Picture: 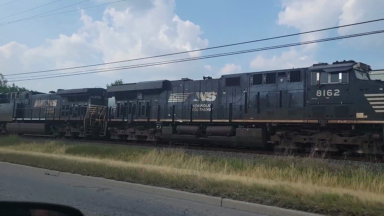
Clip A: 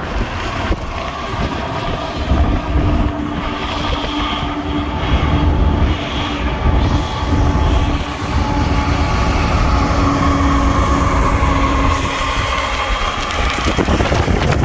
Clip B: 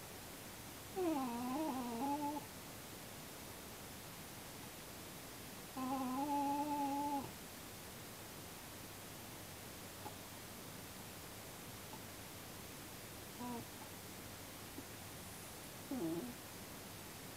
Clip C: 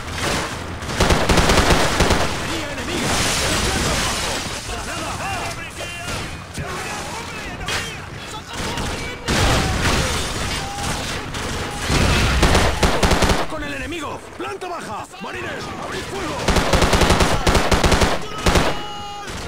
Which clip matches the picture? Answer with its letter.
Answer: A